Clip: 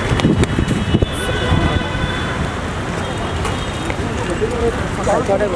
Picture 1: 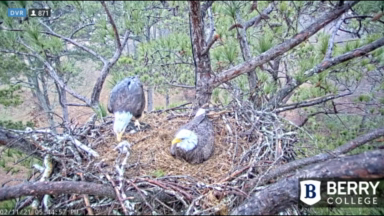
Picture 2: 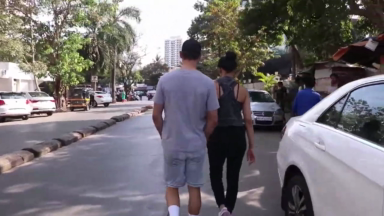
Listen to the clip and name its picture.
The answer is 2